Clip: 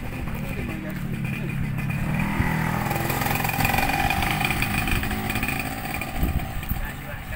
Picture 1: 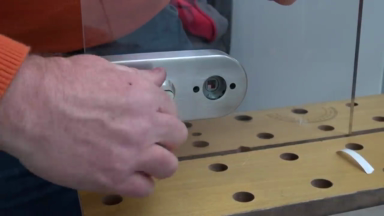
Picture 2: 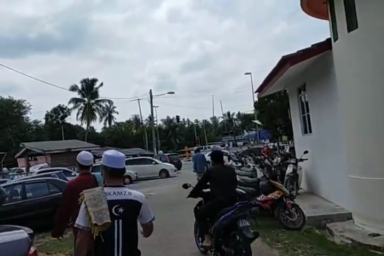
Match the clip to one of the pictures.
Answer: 2